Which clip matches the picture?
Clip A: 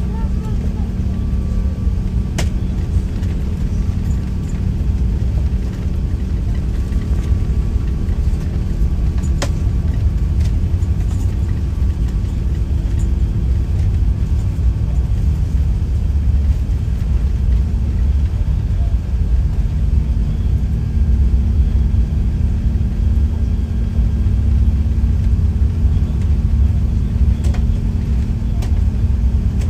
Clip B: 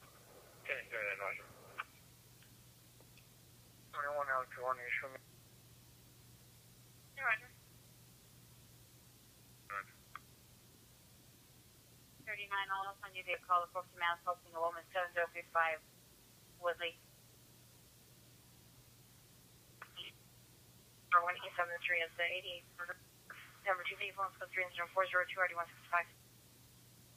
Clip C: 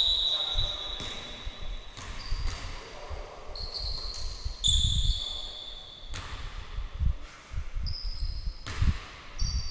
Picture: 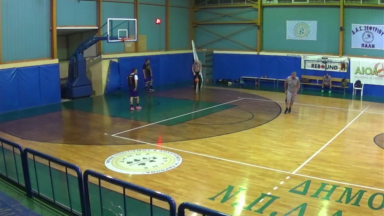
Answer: C